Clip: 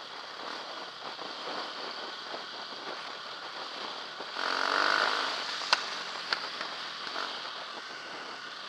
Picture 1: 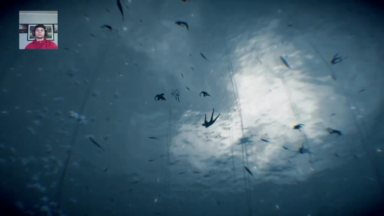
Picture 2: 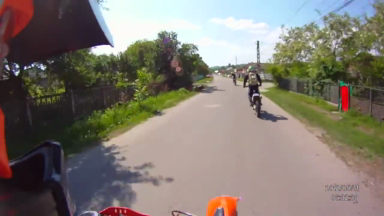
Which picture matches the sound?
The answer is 2